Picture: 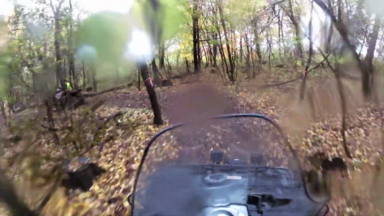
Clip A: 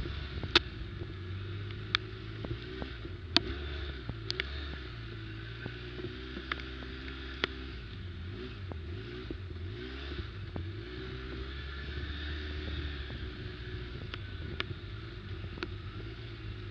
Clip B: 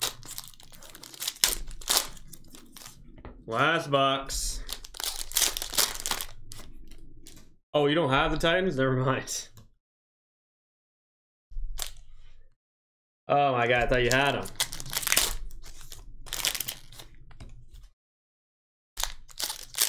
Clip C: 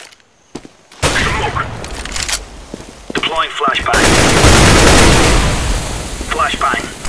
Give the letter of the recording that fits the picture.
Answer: A